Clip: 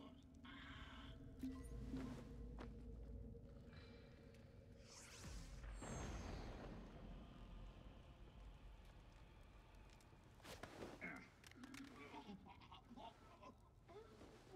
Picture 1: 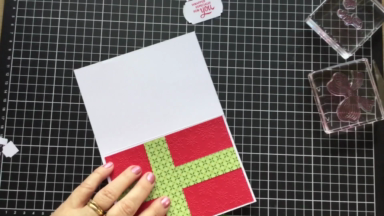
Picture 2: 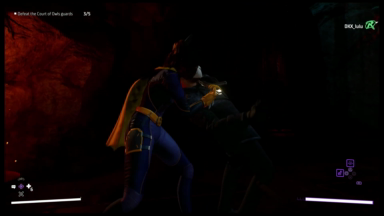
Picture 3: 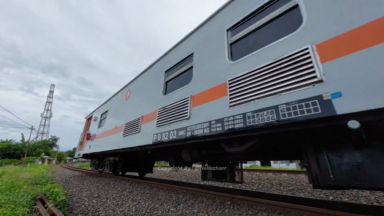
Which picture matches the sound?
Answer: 2